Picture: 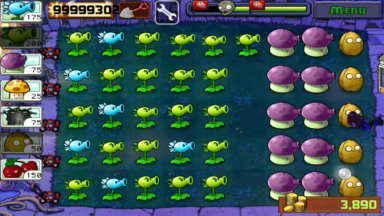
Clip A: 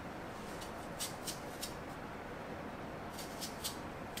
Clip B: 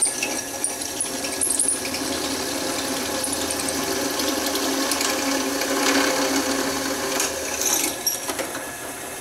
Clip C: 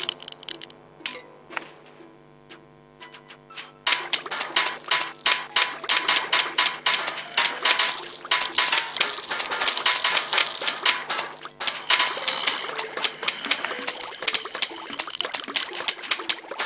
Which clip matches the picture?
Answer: C